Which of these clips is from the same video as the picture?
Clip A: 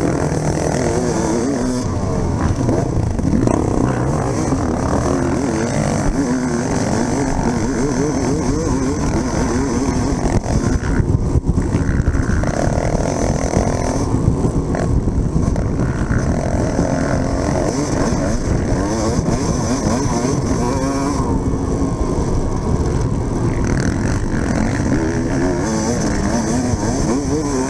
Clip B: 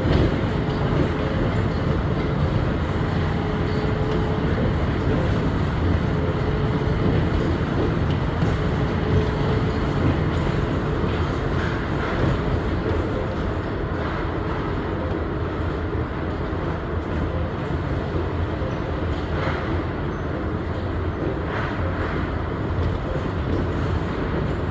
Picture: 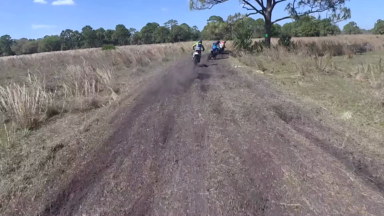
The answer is A